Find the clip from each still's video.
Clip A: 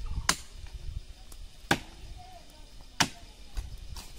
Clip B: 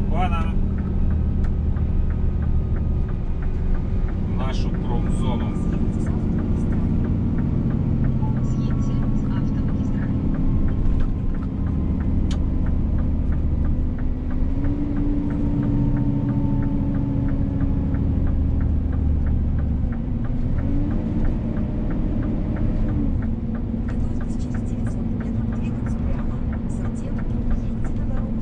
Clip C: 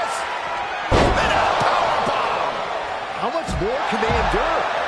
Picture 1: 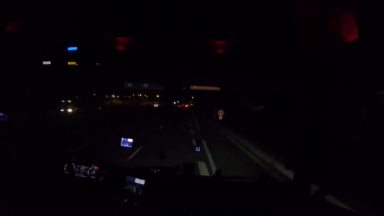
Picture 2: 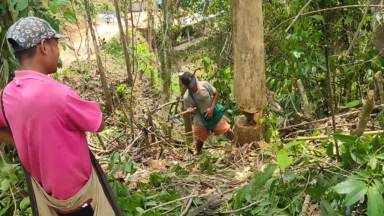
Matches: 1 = B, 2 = A